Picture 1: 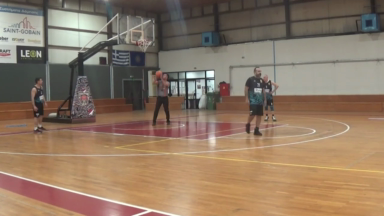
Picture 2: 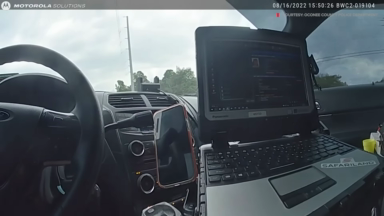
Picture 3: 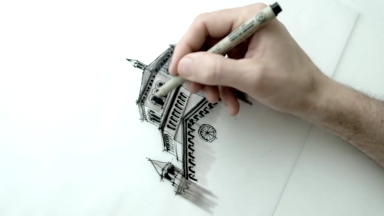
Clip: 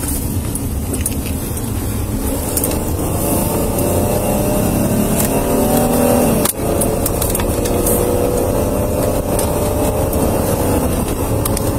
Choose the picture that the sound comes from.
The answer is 2